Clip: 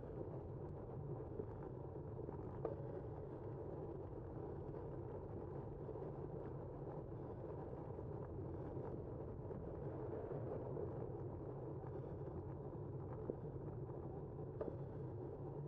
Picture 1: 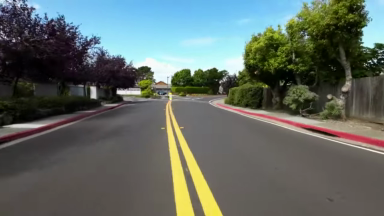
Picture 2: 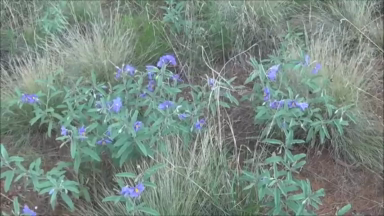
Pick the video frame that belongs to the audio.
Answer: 1